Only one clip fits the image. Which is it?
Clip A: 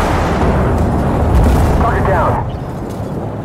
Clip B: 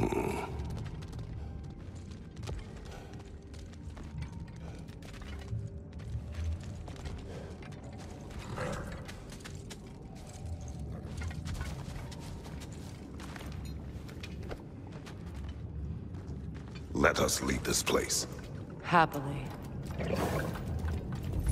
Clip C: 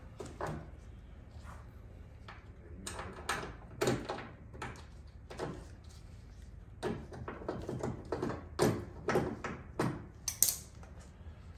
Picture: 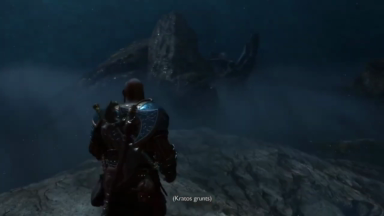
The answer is B